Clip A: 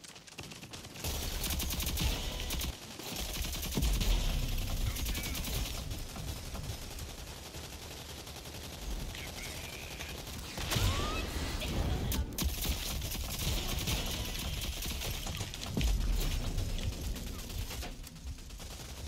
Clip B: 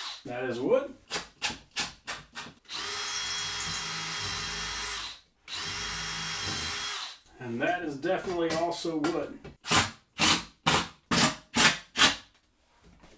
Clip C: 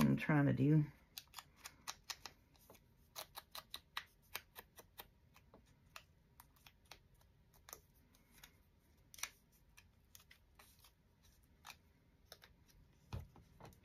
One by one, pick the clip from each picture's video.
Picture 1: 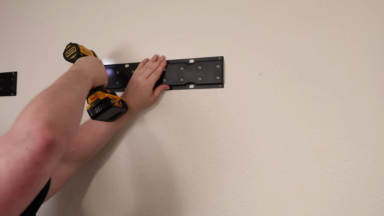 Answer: B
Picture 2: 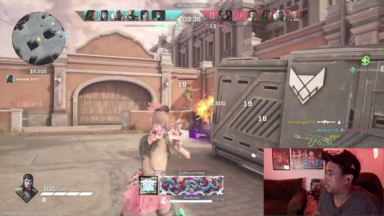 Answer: A